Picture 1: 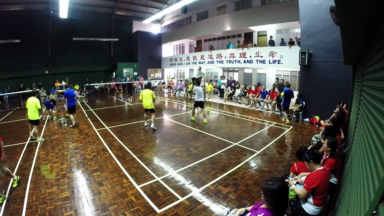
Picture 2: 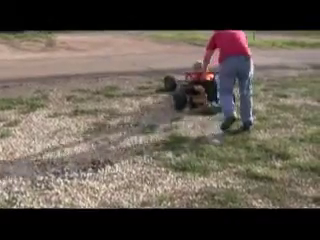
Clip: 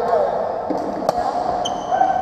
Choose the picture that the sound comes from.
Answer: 1